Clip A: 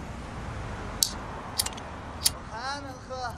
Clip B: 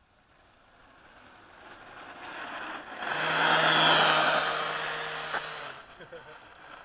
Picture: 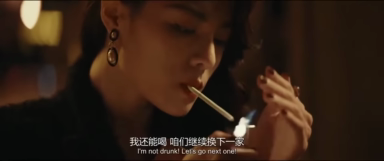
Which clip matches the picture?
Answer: A